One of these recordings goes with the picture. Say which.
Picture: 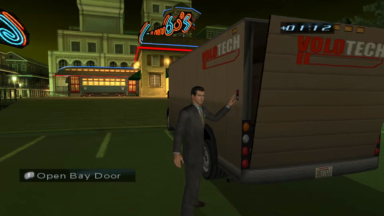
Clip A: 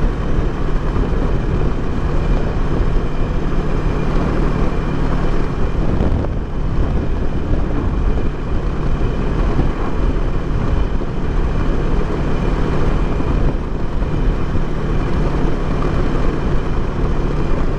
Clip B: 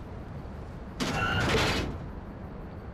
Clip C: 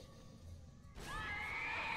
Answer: B